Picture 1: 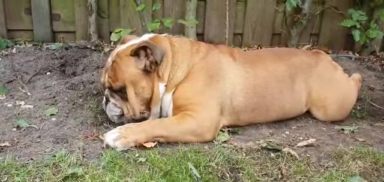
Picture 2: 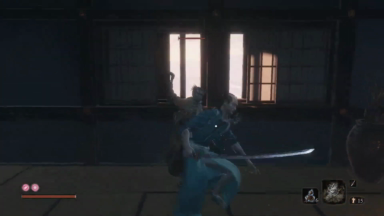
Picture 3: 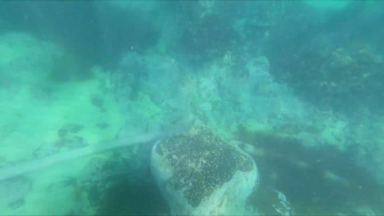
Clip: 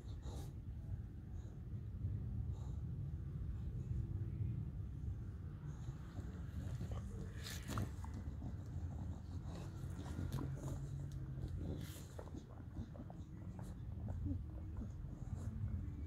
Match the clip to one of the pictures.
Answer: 1